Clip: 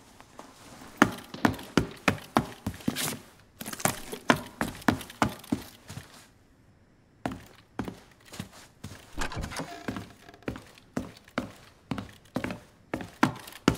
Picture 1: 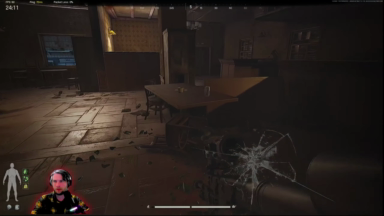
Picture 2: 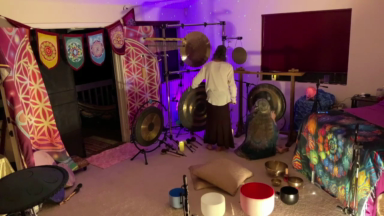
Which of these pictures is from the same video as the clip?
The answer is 1